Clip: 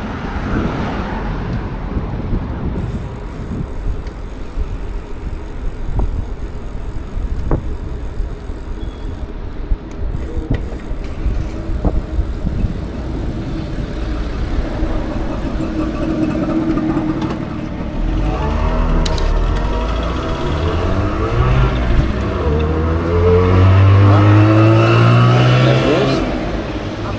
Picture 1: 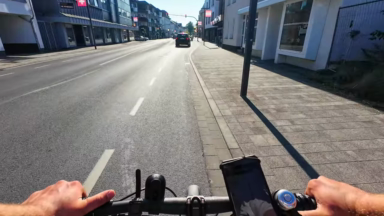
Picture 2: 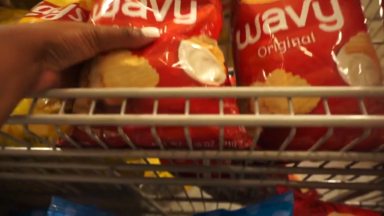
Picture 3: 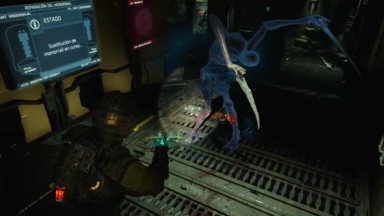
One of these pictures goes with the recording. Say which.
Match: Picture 1